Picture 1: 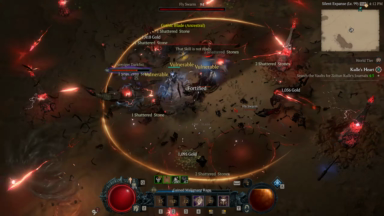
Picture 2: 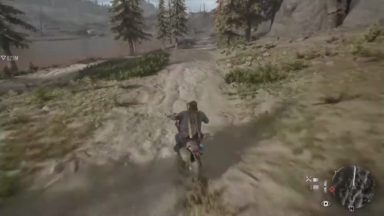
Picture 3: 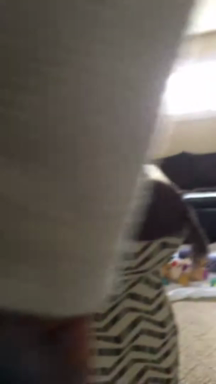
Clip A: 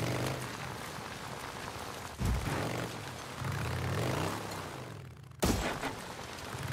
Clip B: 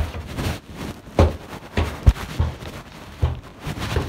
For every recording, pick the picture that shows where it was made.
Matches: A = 2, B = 3